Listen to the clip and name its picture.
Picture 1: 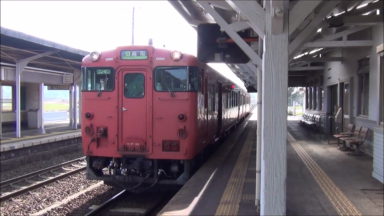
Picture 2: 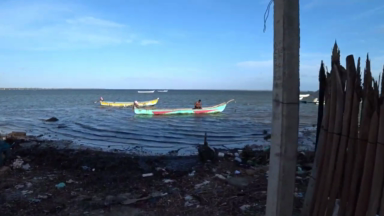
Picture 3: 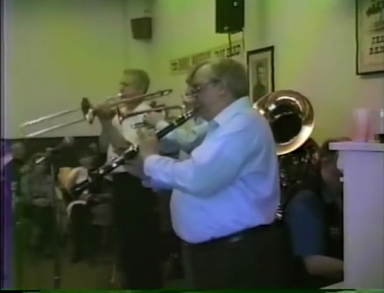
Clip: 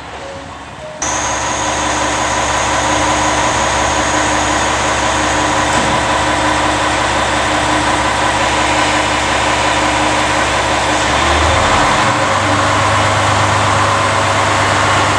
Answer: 1